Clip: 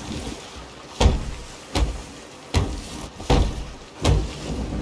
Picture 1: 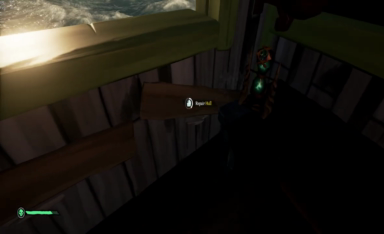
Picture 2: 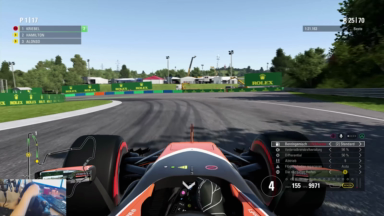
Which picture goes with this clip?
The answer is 1